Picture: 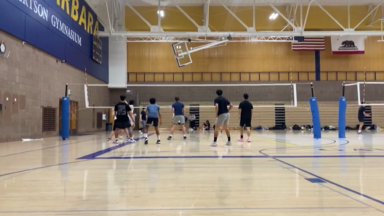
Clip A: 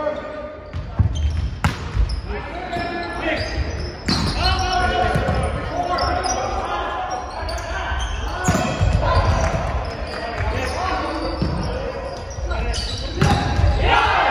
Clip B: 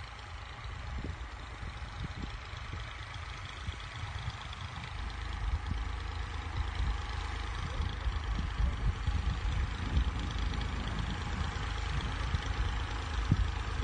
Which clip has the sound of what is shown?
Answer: A